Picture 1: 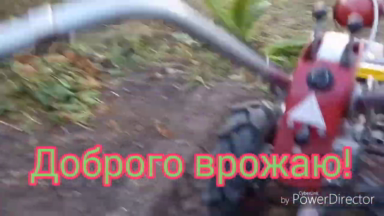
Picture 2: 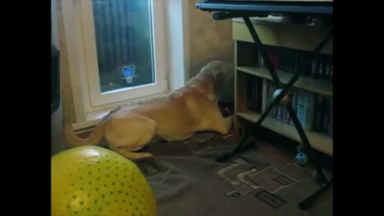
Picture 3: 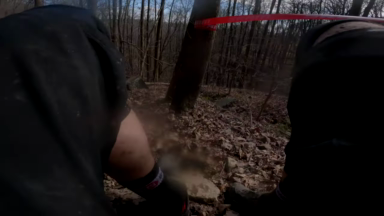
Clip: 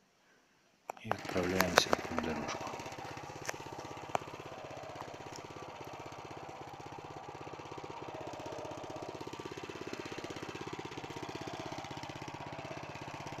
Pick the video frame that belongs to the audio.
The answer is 1